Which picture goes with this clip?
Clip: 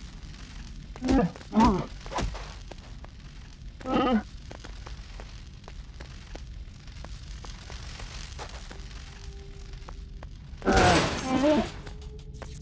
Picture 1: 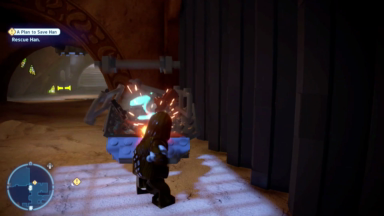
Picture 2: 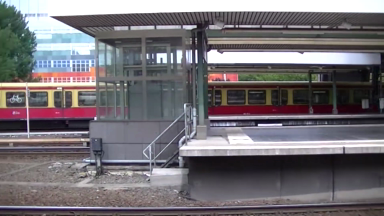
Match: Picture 1